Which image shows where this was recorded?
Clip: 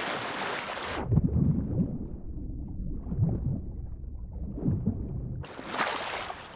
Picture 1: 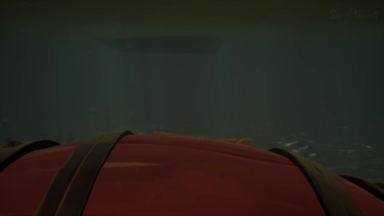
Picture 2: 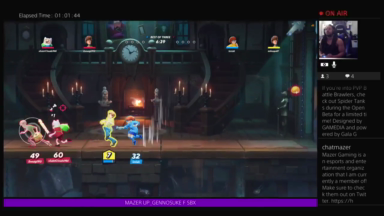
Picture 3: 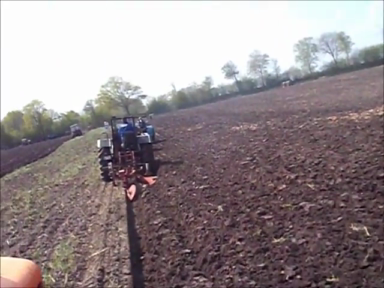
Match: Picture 1